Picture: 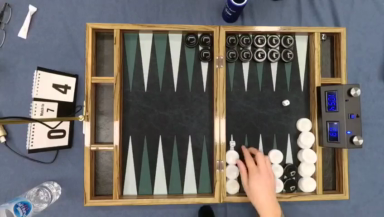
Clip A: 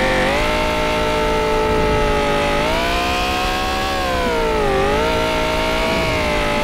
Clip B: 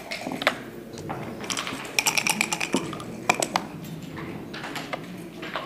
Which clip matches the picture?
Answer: B